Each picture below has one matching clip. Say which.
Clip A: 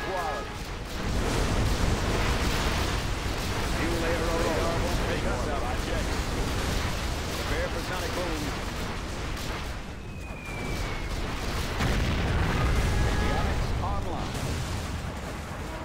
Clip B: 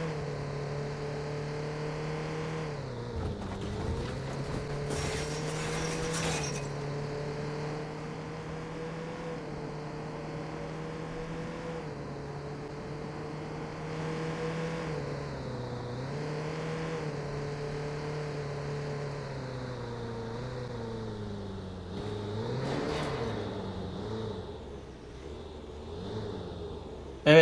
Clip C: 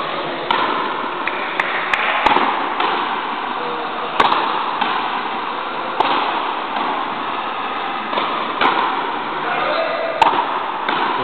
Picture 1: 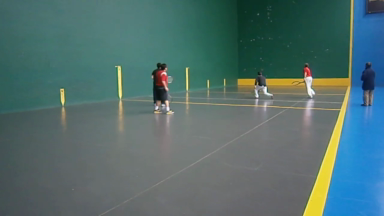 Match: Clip C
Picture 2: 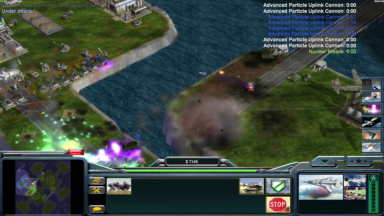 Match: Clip A